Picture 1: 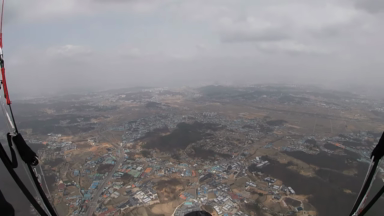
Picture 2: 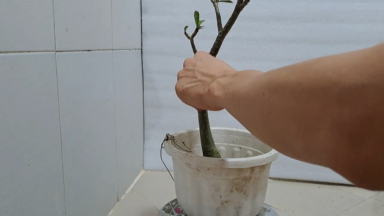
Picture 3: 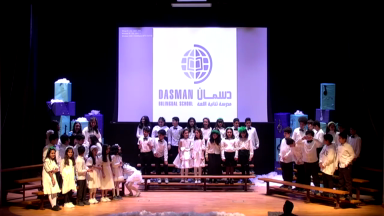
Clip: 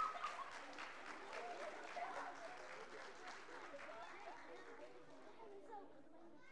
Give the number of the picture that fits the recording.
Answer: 3